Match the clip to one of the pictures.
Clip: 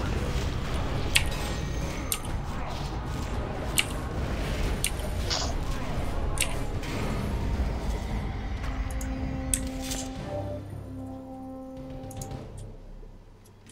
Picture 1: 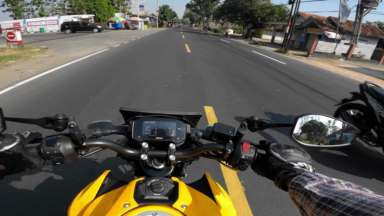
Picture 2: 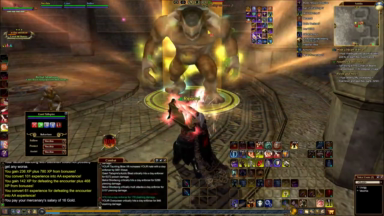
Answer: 2